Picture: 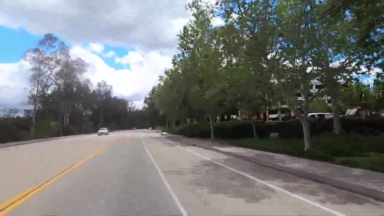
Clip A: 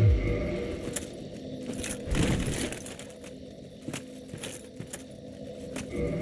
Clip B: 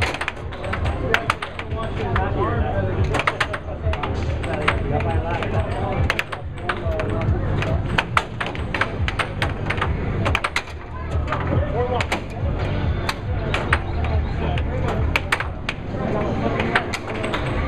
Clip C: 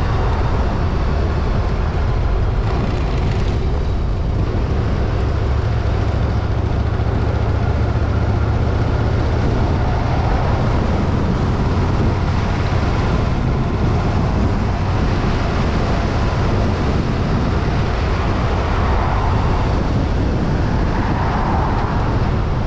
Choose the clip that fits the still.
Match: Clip C